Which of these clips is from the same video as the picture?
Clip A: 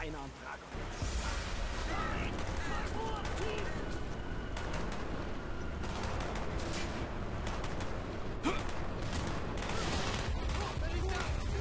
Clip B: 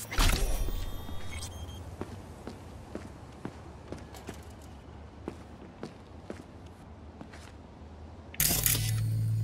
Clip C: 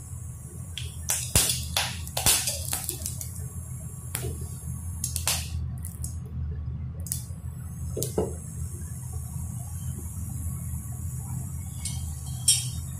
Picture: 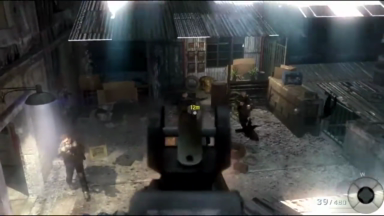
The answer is A